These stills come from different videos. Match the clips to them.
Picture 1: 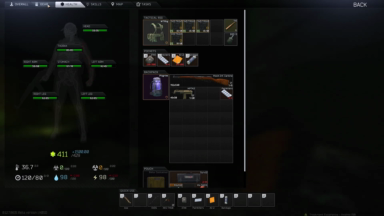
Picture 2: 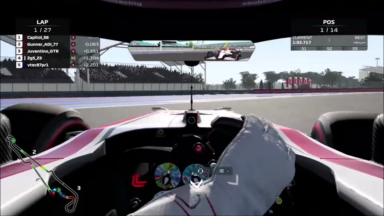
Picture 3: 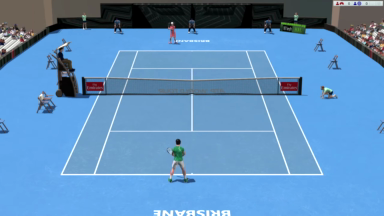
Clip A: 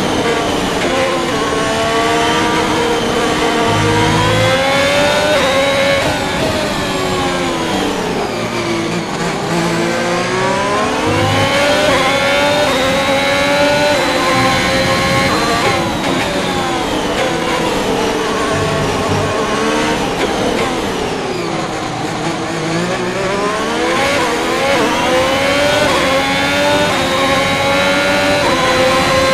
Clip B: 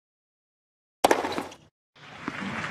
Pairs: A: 2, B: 3